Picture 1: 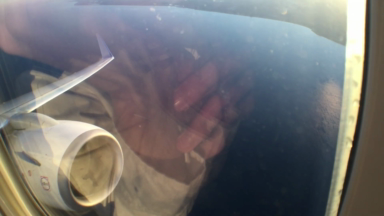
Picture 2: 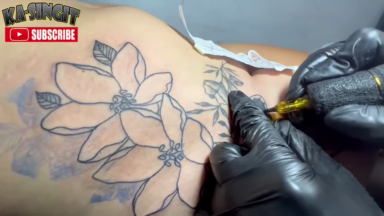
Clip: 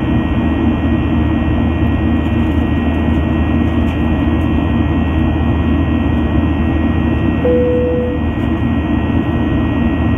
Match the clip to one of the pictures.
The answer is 1